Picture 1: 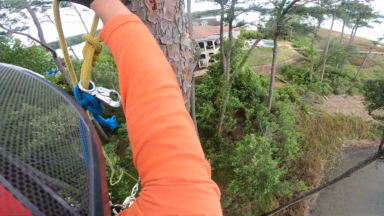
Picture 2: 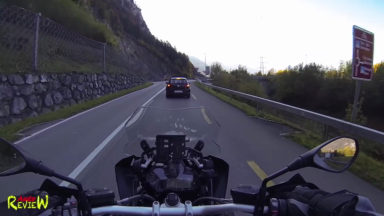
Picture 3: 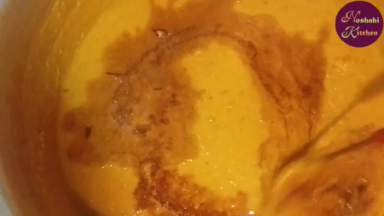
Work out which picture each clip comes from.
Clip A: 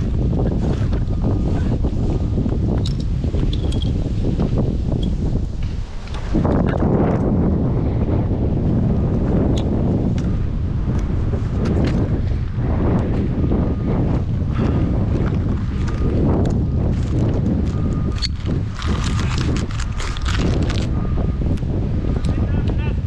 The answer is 1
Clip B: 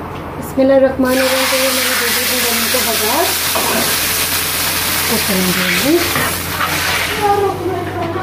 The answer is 3